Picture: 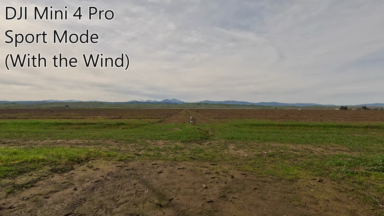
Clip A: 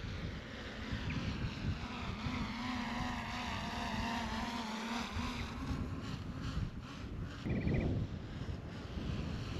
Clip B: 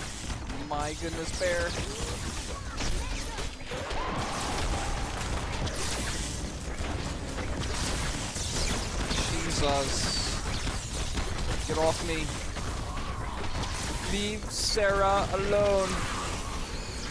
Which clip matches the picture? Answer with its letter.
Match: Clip A